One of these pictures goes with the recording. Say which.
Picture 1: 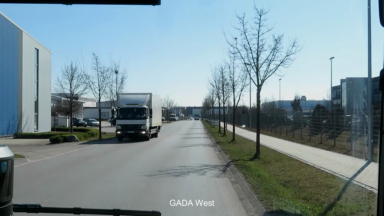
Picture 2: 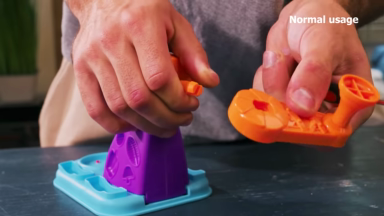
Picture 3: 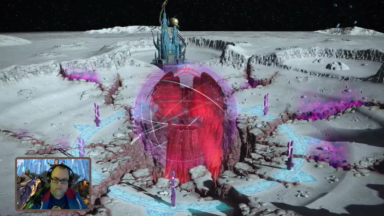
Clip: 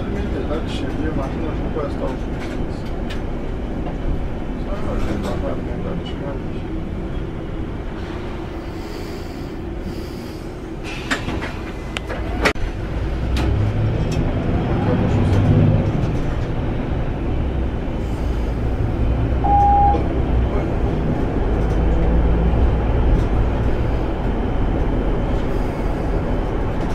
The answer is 1